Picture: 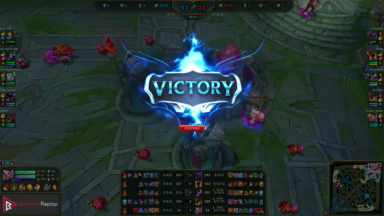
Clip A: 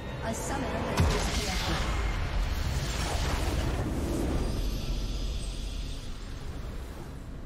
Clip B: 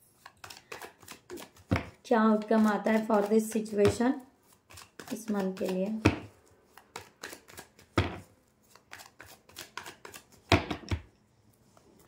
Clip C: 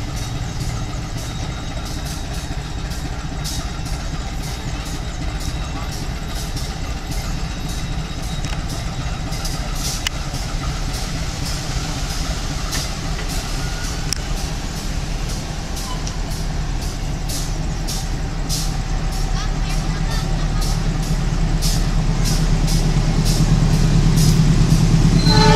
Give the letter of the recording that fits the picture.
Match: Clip A